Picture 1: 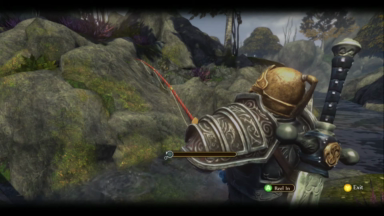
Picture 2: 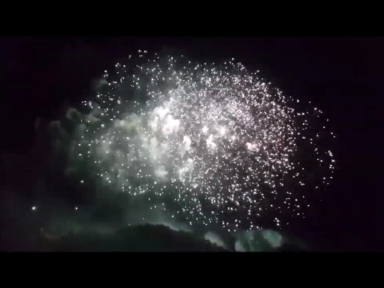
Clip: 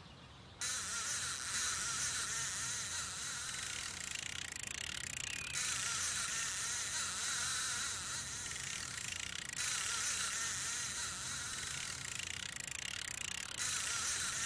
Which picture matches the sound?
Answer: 1